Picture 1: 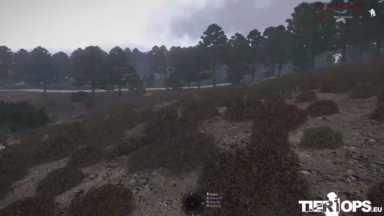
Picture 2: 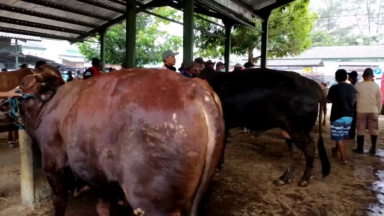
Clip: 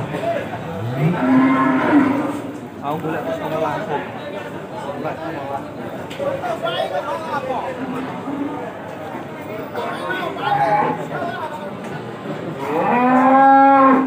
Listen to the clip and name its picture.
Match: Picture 2